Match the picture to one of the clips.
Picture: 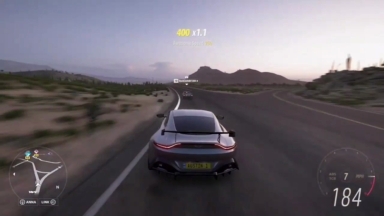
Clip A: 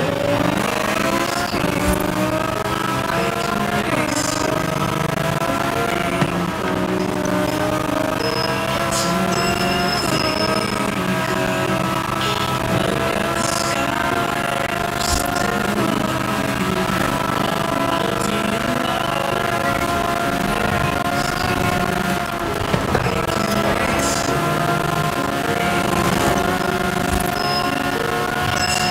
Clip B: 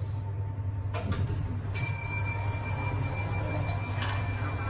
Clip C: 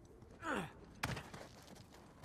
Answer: A